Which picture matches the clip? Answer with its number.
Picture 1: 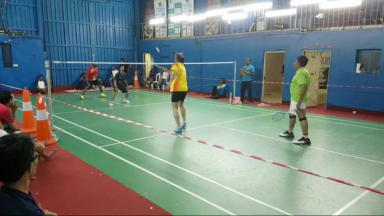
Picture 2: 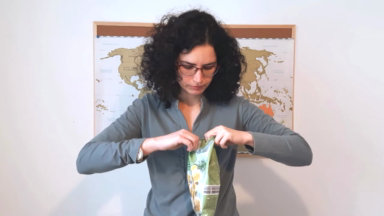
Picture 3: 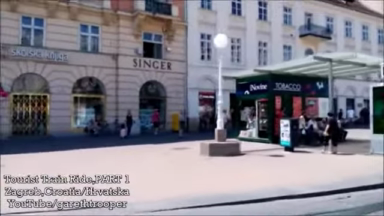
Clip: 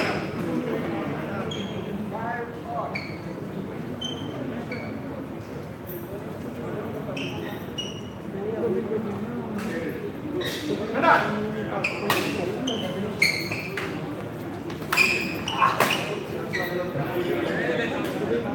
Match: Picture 1